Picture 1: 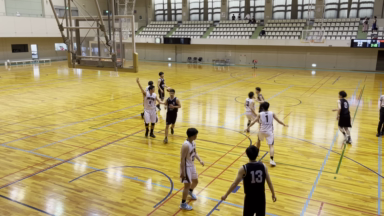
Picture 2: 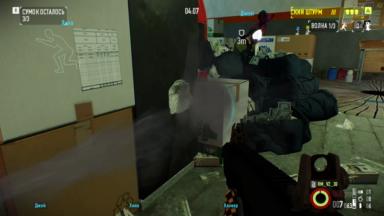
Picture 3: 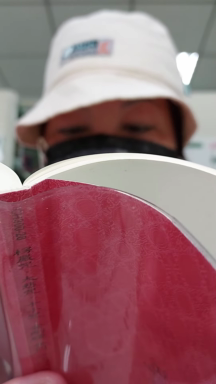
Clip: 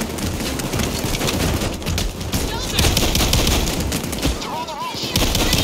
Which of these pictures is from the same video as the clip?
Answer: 2